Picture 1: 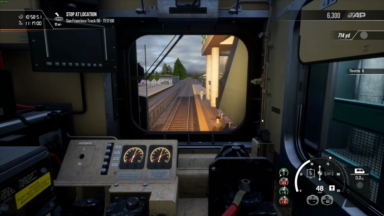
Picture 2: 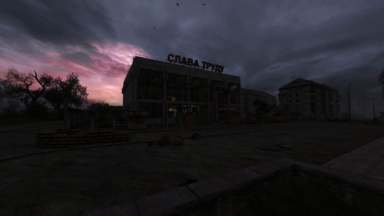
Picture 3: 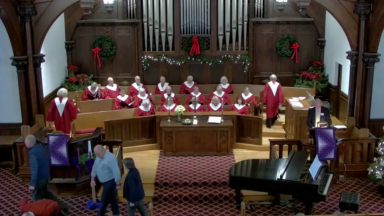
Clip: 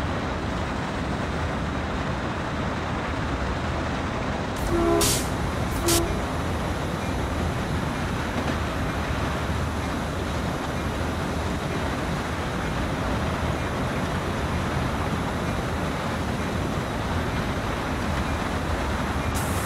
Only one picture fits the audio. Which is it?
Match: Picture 1